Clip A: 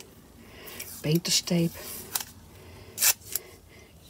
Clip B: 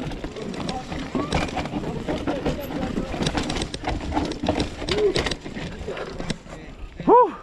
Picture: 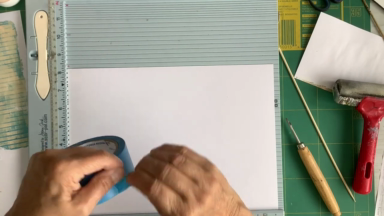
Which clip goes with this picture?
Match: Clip A